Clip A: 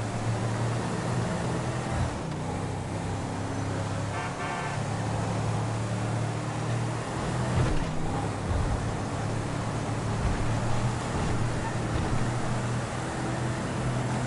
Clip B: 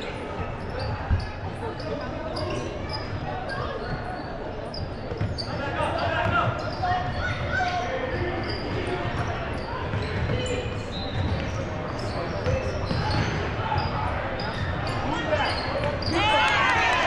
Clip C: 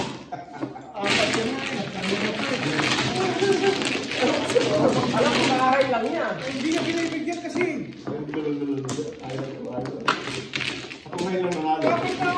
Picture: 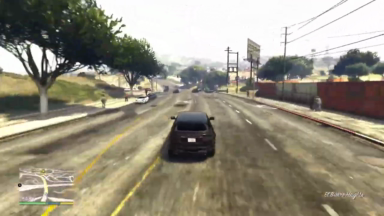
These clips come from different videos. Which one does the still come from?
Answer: A